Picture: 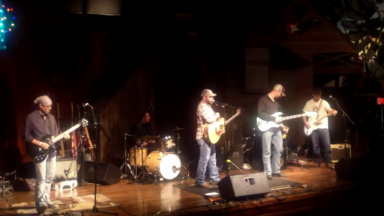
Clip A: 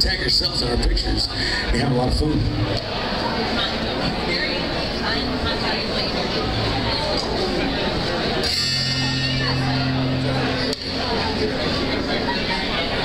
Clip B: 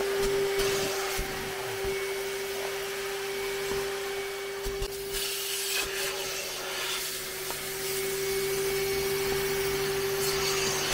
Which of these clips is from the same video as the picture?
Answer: A